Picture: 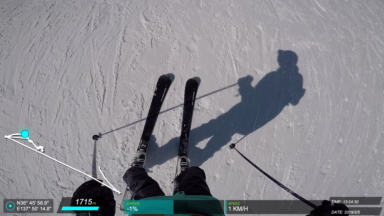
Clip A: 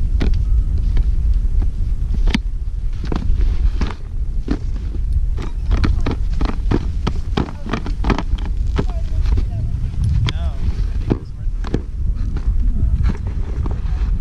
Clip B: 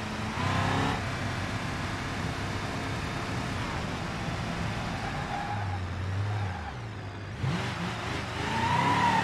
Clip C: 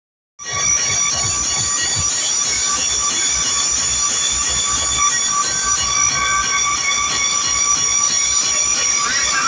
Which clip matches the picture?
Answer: A